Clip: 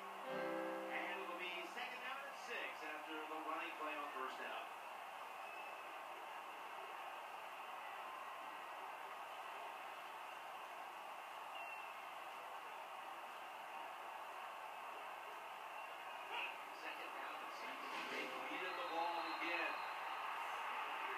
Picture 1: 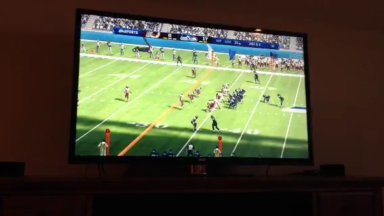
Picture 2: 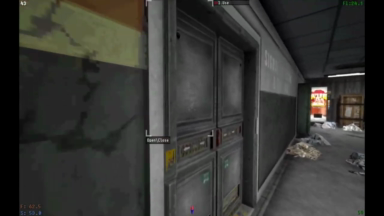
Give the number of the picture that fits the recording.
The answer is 1